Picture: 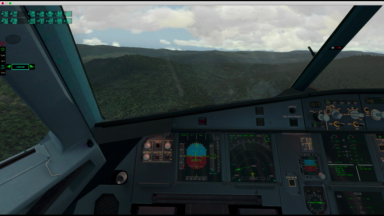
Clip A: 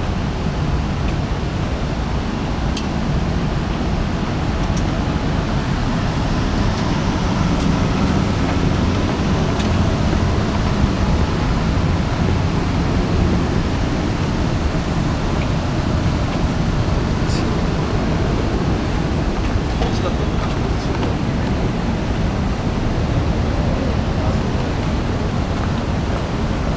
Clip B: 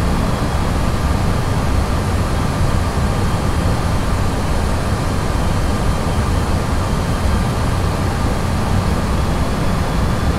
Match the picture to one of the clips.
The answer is B